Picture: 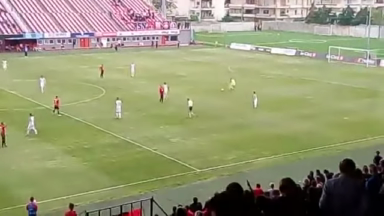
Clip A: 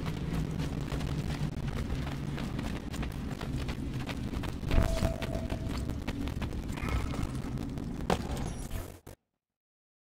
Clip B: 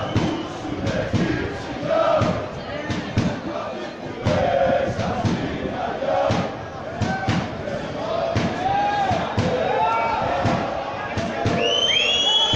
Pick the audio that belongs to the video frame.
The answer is B